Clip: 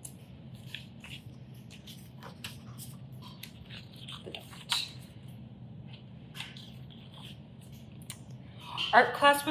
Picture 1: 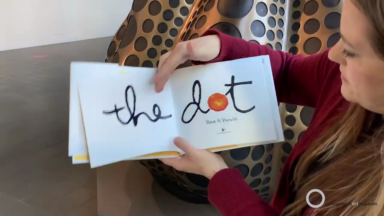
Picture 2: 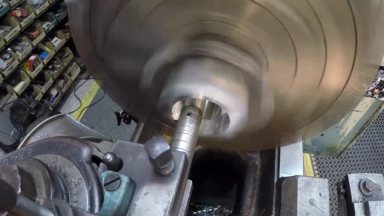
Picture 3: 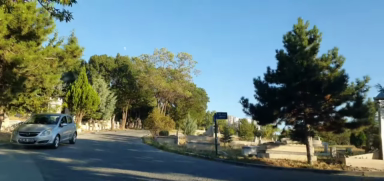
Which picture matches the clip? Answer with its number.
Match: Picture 1